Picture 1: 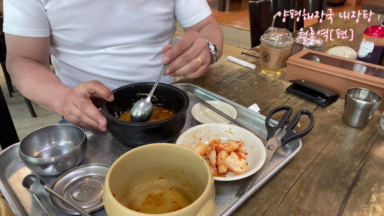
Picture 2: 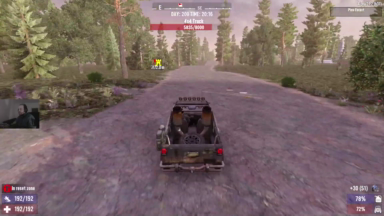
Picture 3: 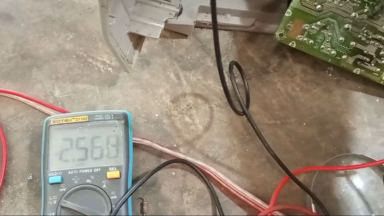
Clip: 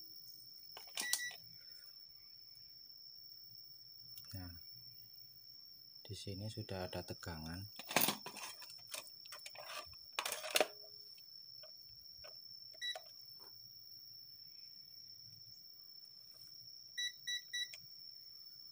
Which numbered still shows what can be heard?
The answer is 3